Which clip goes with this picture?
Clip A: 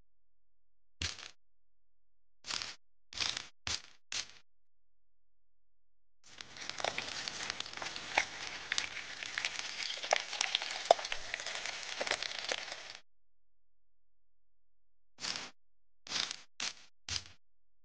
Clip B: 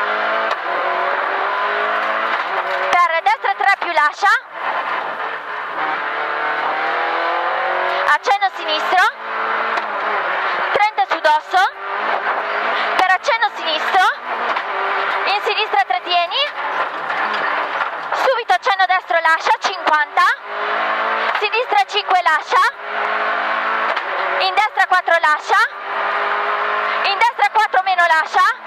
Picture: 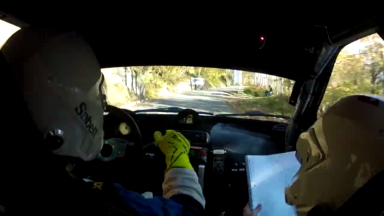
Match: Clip B